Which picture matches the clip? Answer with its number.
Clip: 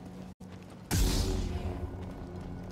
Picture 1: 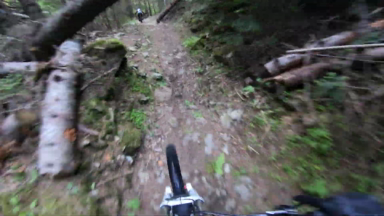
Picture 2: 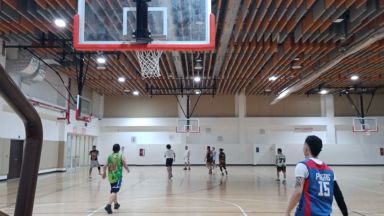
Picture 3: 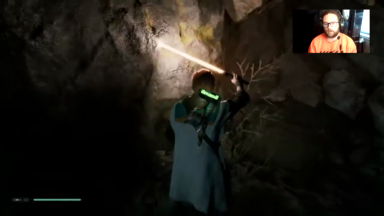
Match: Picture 3